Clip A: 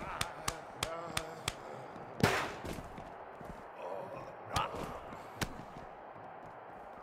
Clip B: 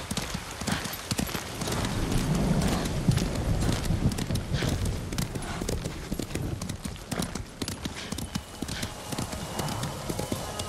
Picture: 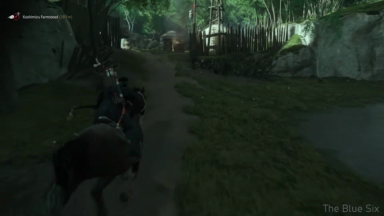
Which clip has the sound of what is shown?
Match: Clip B